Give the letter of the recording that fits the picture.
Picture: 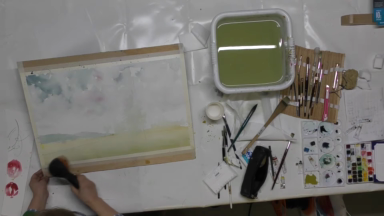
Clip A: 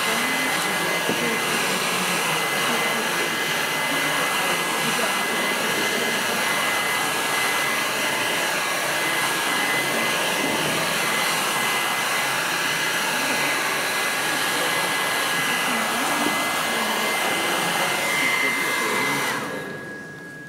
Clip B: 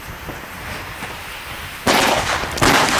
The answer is A